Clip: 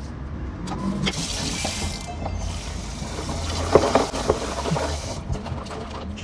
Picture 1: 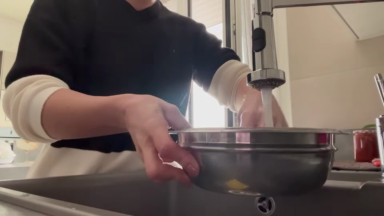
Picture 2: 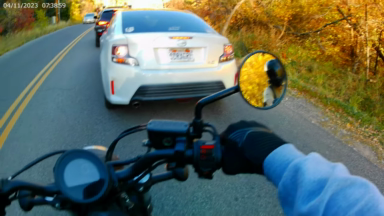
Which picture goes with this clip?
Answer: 1